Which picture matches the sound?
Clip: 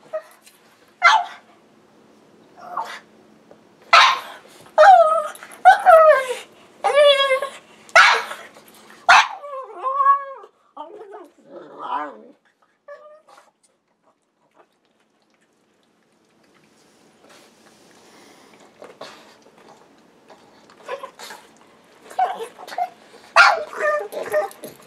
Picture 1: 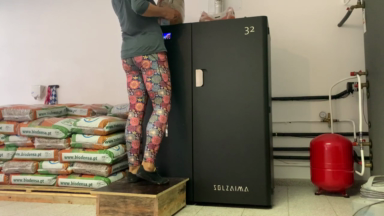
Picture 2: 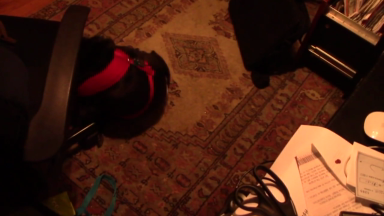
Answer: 2